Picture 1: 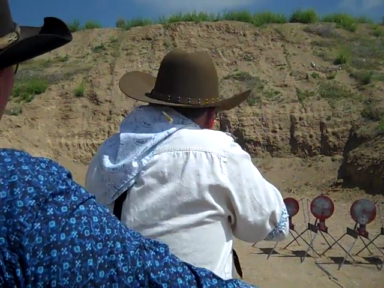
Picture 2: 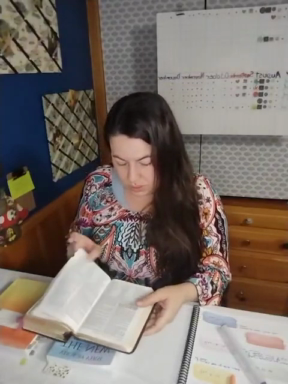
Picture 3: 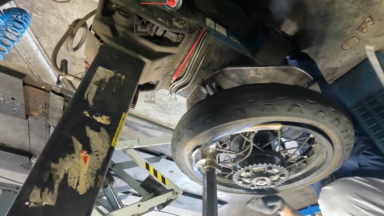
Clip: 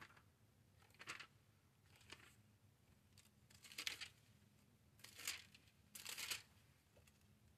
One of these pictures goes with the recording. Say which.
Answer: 2